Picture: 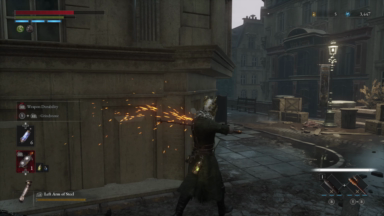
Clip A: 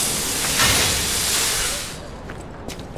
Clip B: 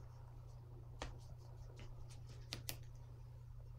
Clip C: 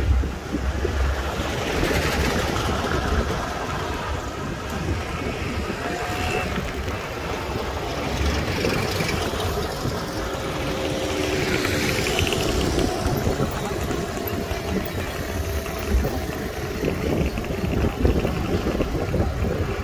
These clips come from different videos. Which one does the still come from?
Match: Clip A